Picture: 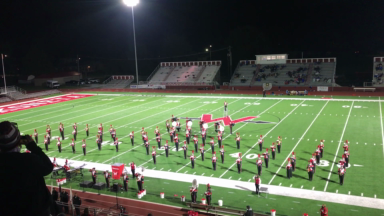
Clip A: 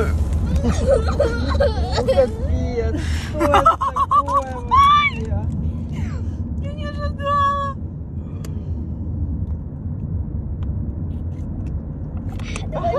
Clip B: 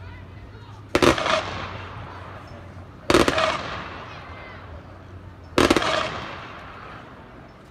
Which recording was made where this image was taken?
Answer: B